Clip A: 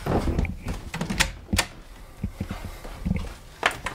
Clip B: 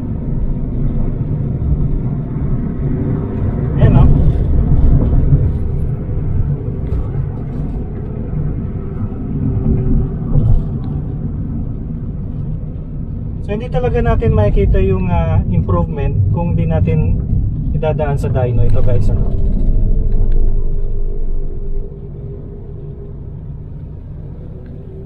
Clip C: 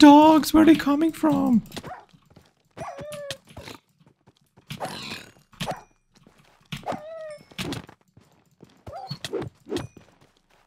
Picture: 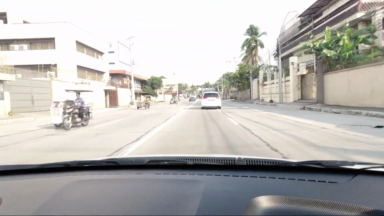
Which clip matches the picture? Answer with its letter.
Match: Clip B